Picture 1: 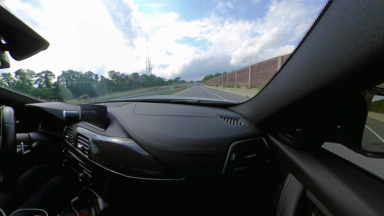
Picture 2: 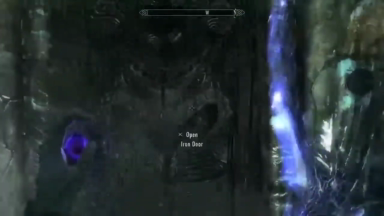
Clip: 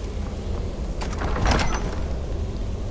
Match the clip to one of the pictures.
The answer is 2